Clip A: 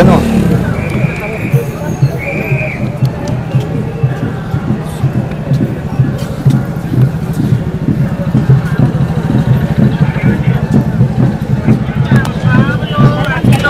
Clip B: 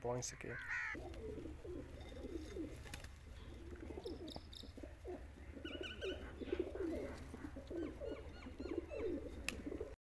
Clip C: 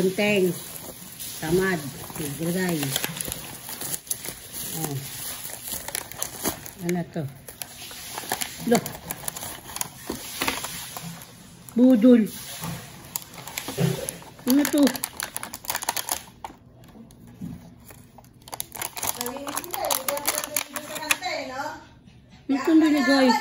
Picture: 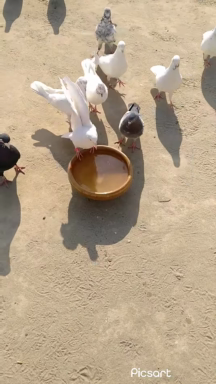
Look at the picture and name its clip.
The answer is B